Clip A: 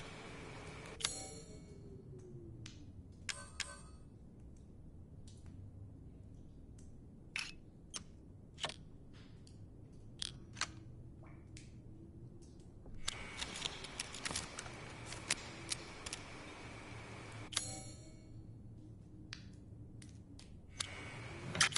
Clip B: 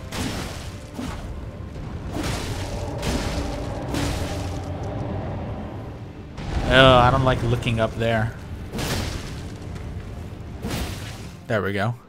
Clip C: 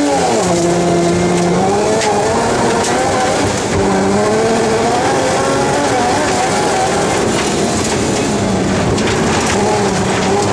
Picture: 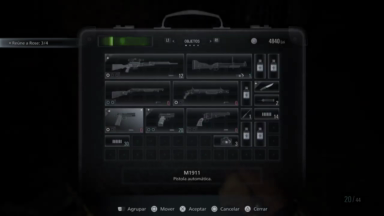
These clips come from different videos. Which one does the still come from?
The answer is A